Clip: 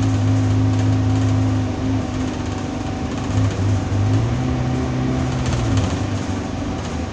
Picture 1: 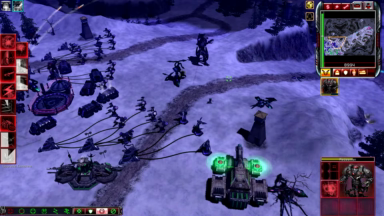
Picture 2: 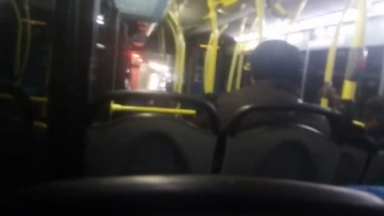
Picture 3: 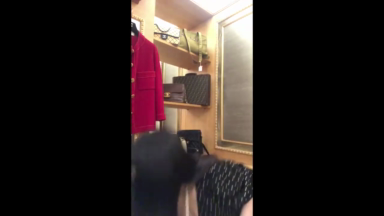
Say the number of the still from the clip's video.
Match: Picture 2